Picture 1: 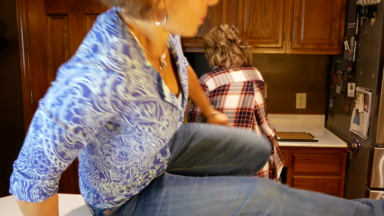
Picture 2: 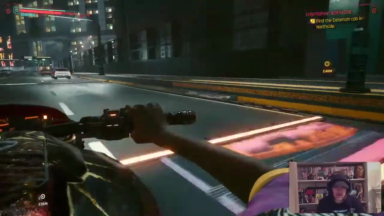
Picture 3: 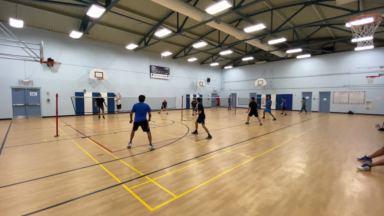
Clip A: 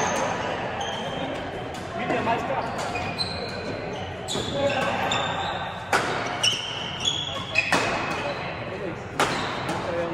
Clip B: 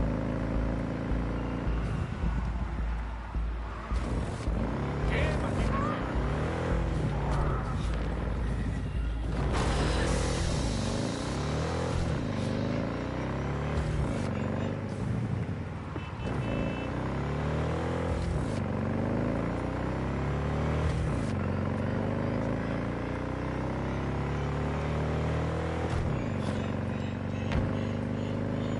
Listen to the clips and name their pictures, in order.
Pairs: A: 3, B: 2